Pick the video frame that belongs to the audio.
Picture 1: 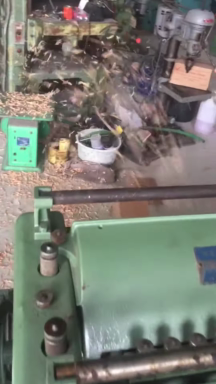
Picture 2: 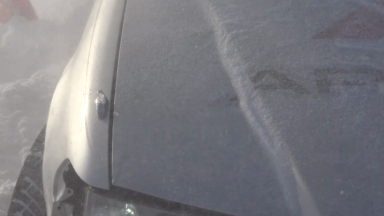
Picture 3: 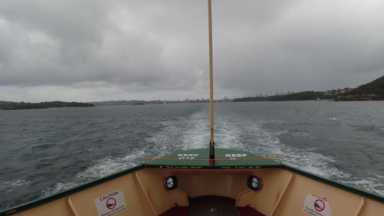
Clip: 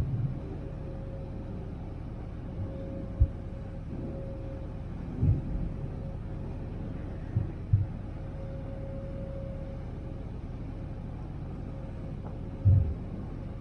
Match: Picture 3